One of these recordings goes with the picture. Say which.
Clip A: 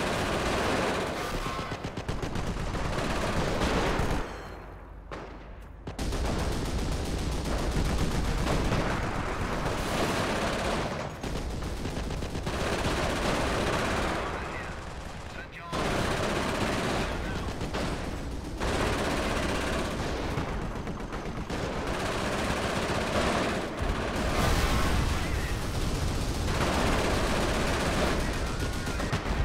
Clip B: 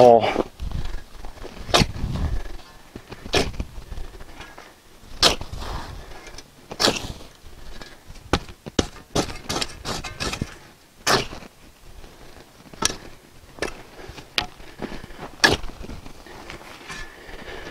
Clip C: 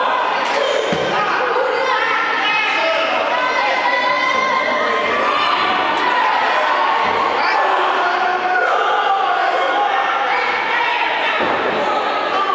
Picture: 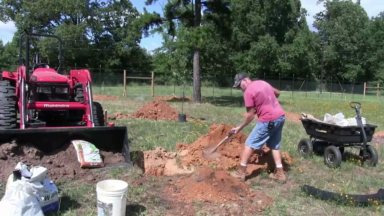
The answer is B